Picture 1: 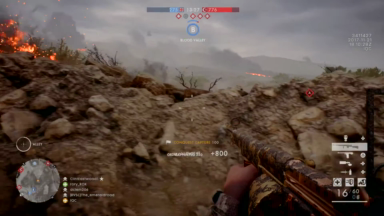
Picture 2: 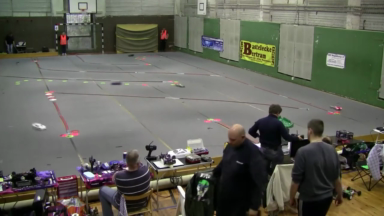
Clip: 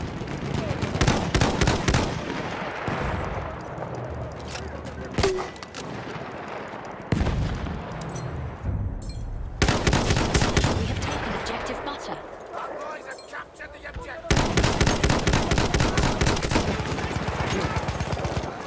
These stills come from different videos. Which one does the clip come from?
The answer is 1